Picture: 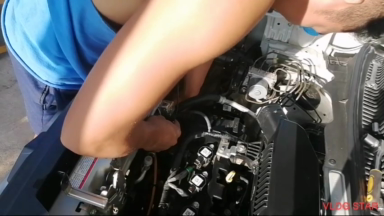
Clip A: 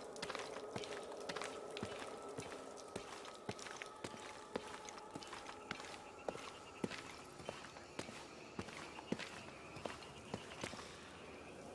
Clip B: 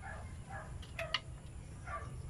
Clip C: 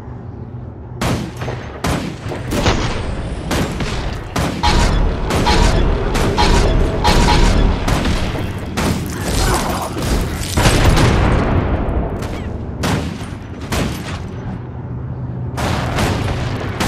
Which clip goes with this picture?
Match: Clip B